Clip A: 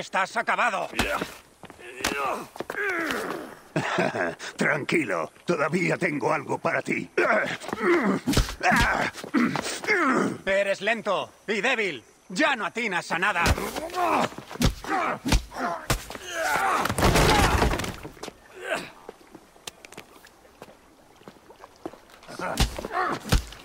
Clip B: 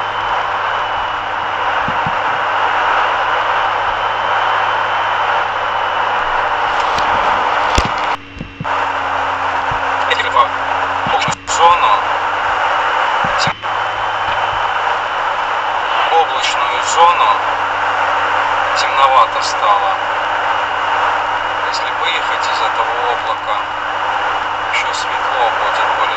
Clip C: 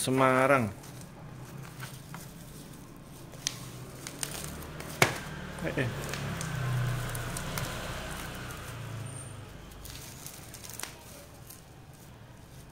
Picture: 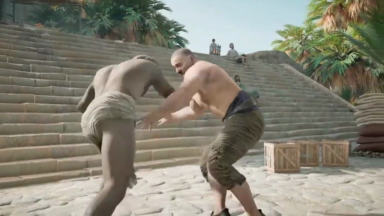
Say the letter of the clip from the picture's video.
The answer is A